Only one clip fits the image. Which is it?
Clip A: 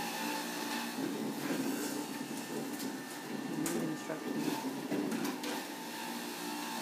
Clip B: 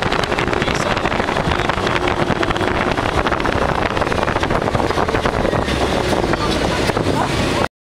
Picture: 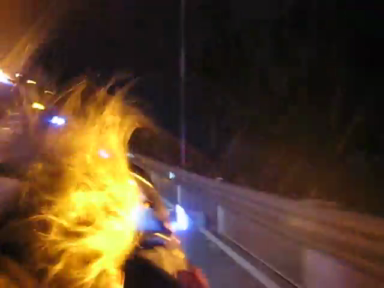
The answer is B